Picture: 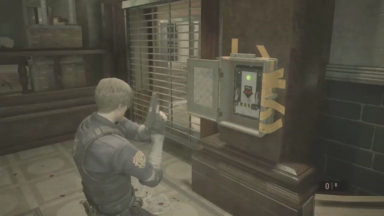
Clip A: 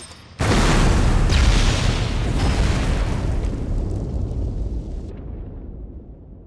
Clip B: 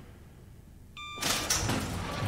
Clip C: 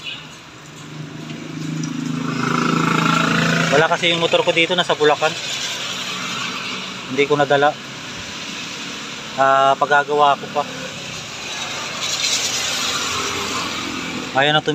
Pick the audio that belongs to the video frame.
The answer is B